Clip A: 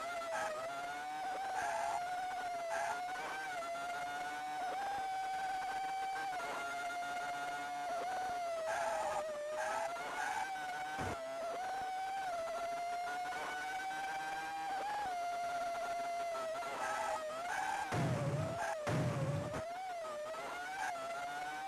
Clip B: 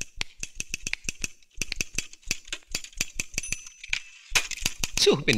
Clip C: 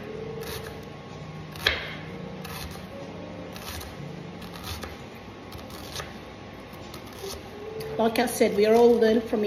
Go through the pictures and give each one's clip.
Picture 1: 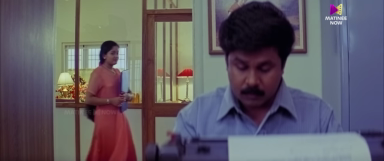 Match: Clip B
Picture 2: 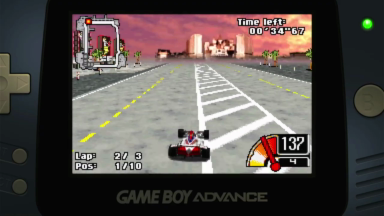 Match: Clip A